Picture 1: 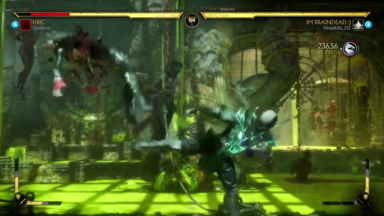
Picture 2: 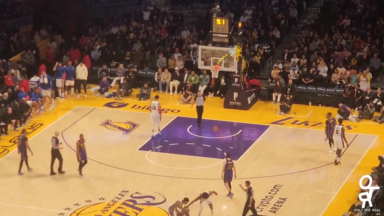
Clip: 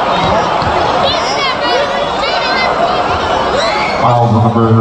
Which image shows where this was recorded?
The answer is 2